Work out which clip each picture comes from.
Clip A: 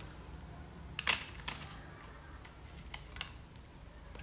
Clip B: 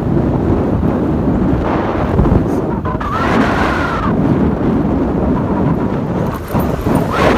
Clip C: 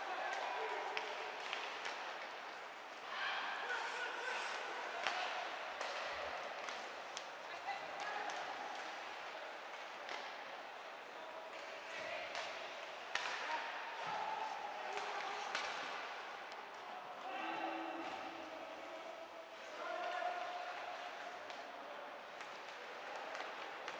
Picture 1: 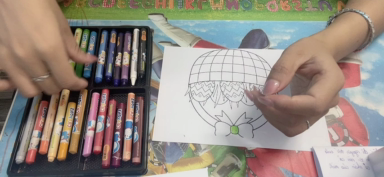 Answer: A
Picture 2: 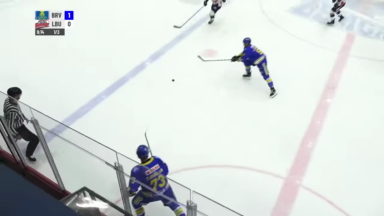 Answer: C